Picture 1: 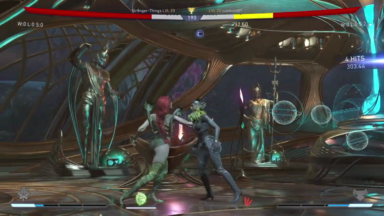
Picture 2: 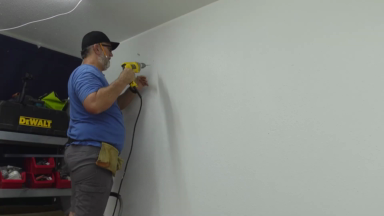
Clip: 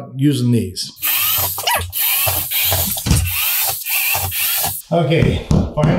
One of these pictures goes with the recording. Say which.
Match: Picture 2